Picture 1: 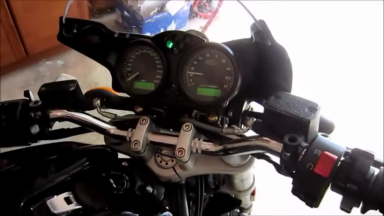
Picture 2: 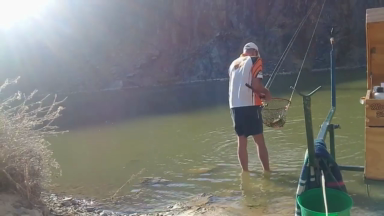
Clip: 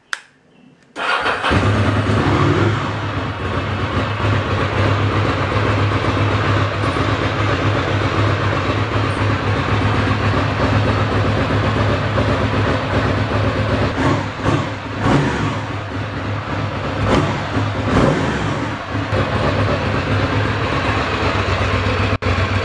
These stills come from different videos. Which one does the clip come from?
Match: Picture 1